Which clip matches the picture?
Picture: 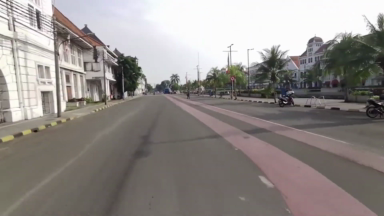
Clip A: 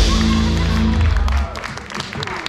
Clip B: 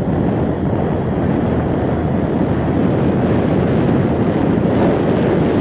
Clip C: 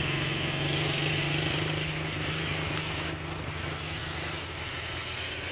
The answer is B